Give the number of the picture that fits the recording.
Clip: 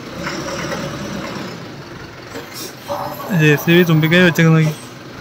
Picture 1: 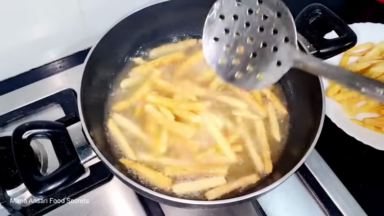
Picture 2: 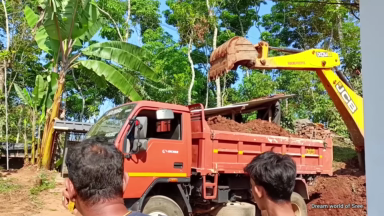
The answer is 2